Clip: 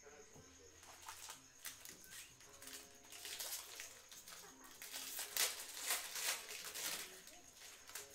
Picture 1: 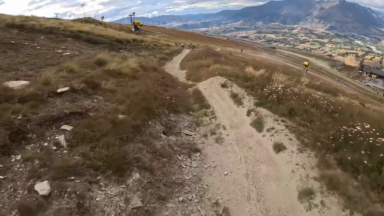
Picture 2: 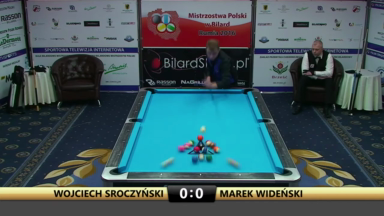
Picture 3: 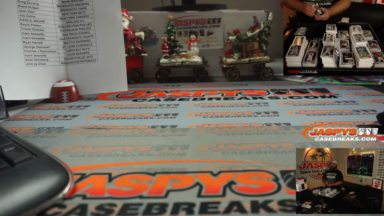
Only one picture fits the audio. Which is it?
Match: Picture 3